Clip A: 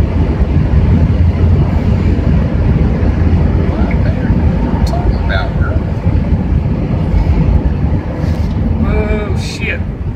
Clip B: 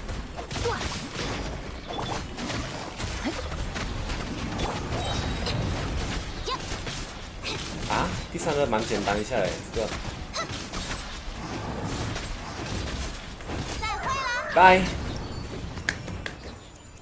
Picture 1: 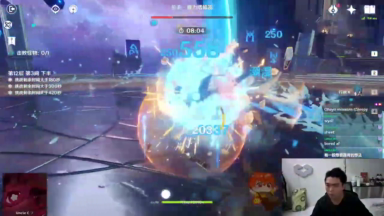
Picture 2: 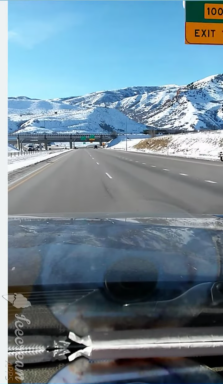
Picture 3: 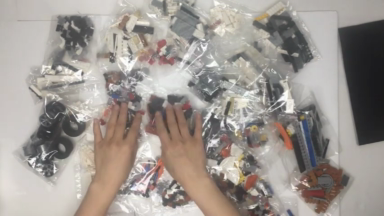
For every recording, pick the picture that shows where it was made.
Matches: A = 2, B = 1